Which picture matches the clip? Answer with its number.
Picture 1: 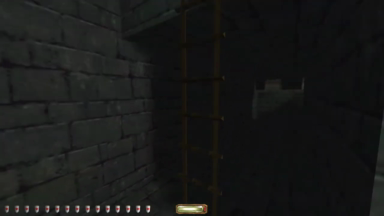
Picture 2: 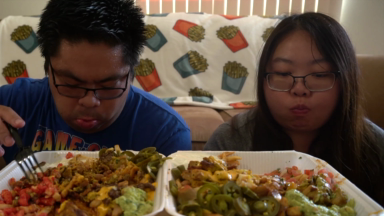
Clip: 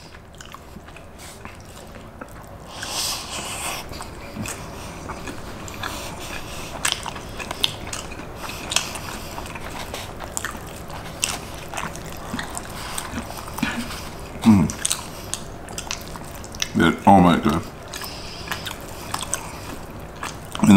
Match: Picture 2